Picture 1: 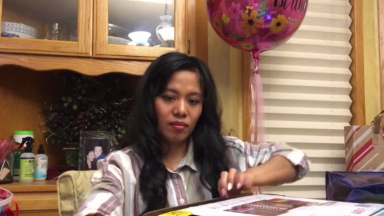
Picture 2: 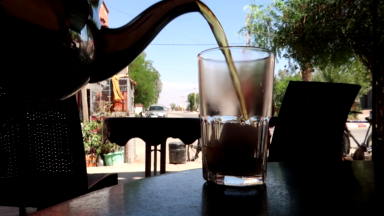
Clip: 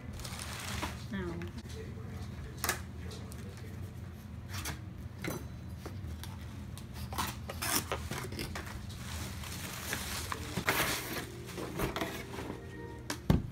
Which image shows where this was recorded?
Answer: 1